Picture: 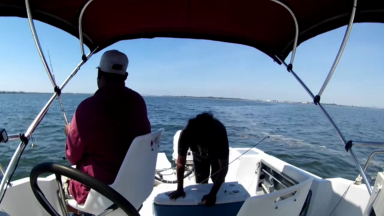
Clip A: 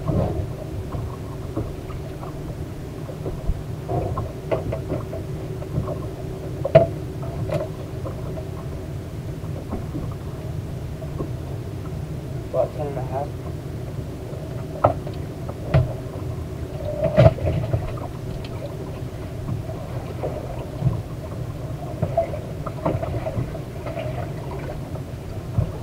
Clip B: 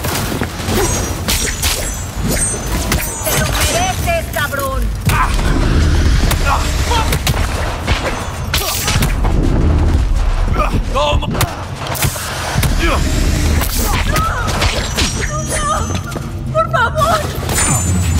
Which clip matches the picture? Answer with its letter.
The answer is A